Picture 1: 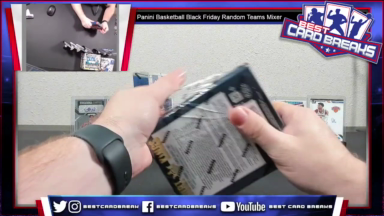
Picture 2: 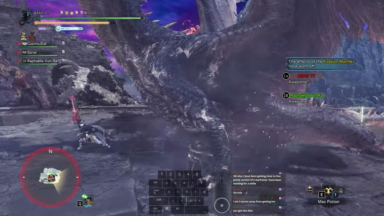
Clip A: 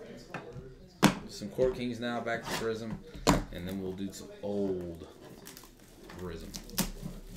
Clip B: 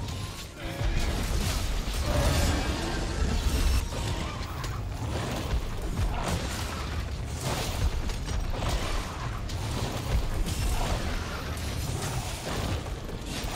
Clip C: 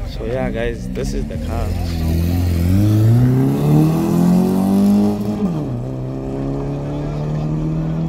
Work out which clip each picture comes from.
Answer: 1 A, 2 B